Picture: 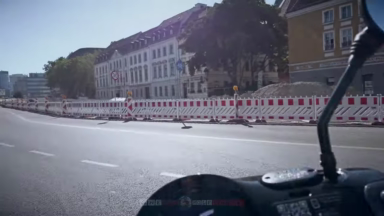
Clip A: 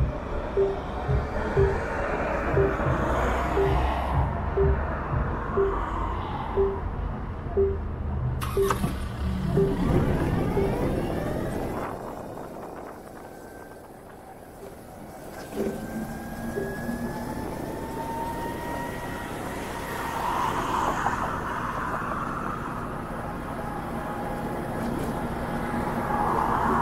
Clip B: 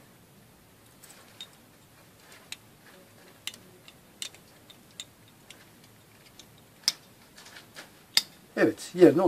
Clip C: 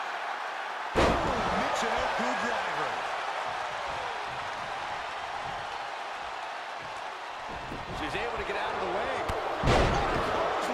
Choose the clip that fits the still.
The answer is A